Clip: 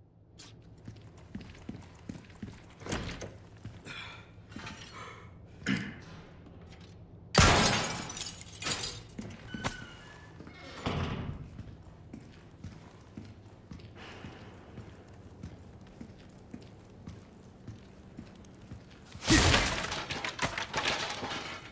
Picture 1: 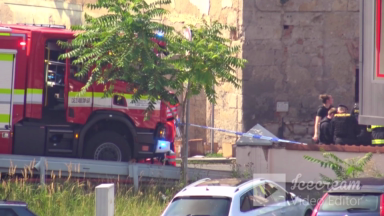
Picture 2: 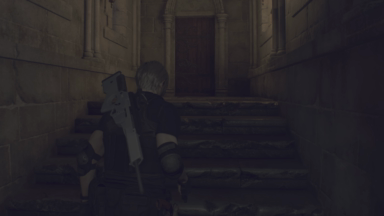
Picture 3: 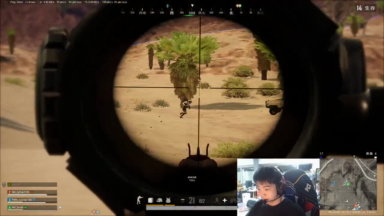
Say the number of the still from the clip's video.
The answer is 2